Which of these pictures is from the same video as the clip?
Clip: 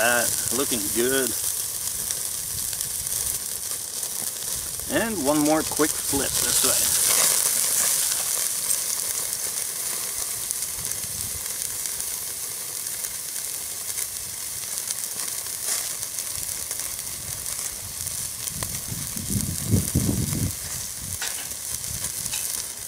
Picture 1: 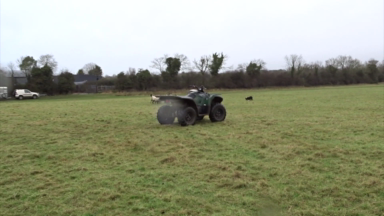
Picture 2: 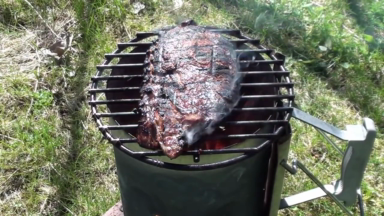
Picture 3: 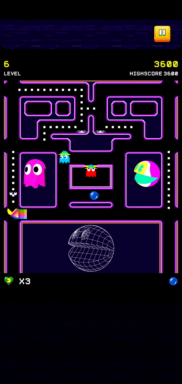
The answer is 2